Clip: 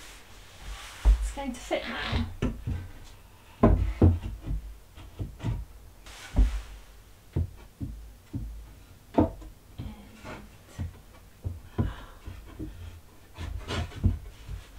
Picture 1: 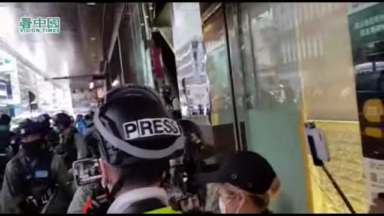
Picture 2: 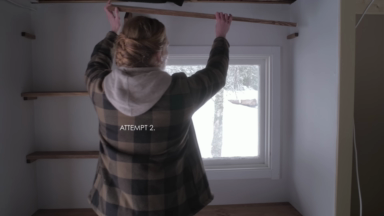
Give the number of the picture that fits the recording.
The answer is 2